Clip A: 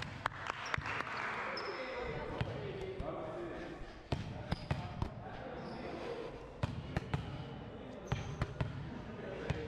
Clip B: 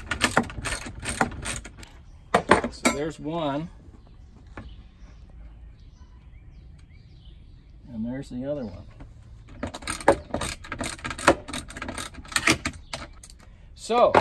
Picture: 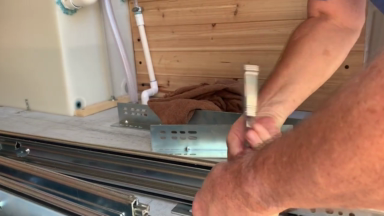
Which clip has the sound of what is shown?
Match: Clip B